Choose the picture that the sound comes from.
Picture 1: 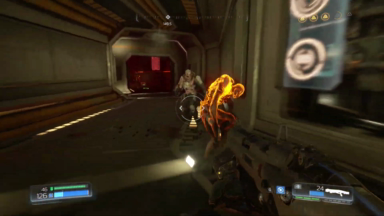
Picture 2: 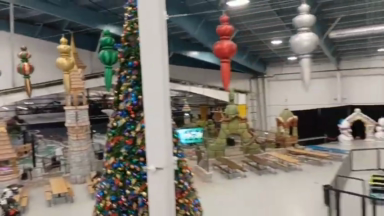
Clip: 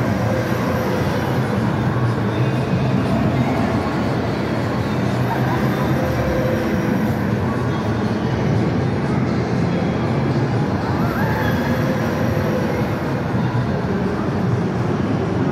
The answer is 2